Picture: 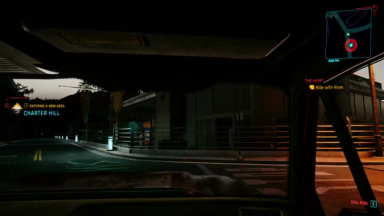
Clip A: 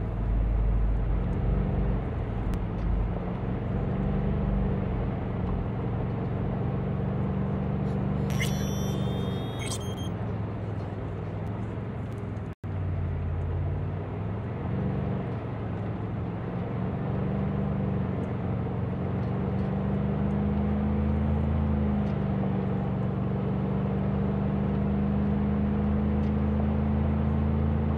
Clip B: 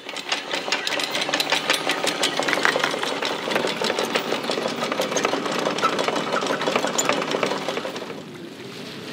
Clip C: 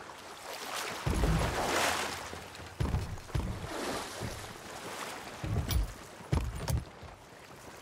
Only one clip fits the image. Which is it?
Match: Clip A